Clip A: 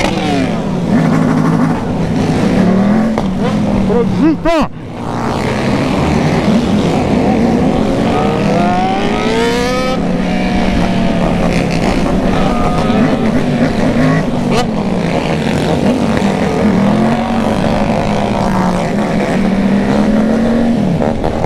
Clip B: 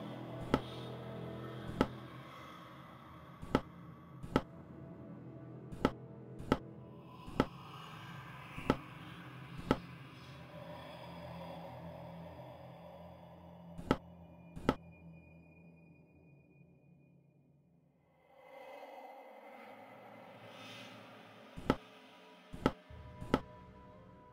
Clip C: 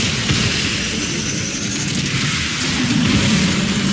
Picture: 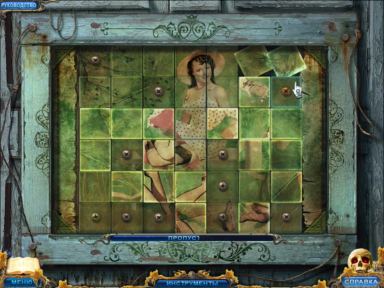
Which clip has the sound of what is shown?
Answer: B